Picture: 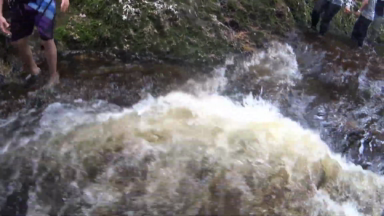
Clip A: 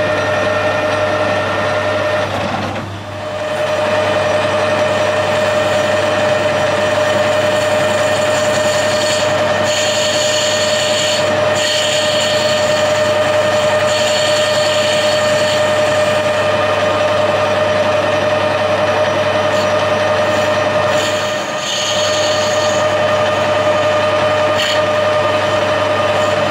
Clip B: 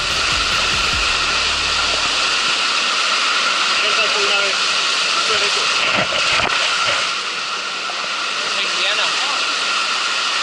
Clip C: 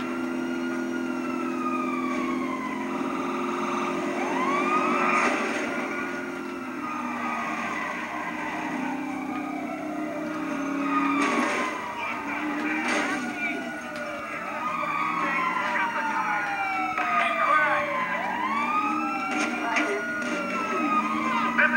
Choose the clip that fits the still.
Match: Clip B